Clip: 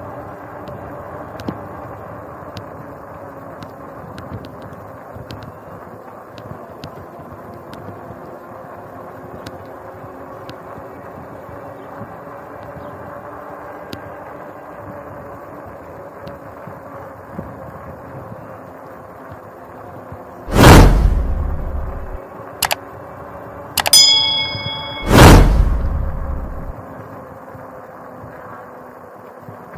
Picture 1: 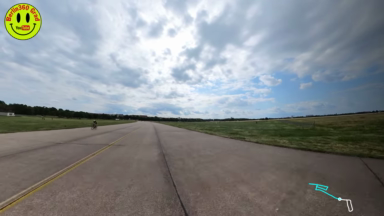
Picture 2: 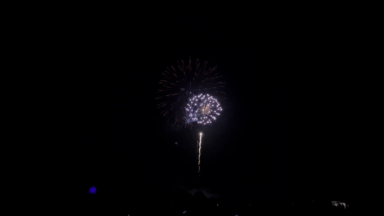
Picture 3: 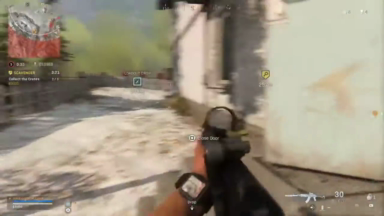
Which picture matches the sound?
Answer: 1